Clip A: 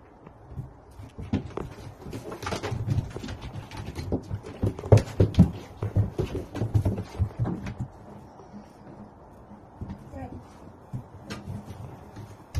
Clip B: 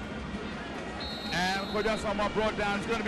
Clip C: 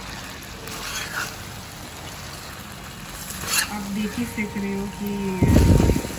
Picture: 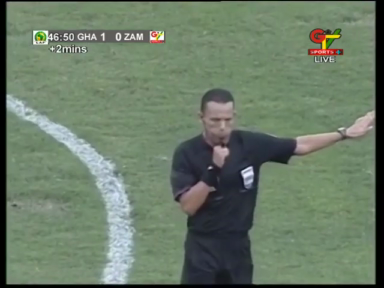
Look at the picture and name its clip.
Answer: B